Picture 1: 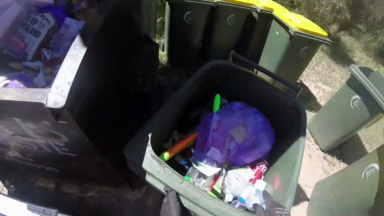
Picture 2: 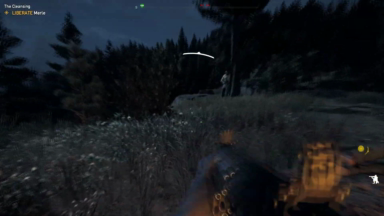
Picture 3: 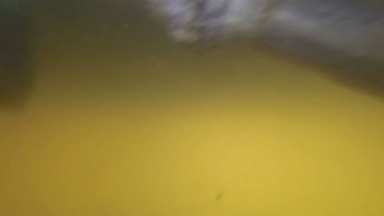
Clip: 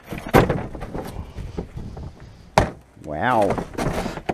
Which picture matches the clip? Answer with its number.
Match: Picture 1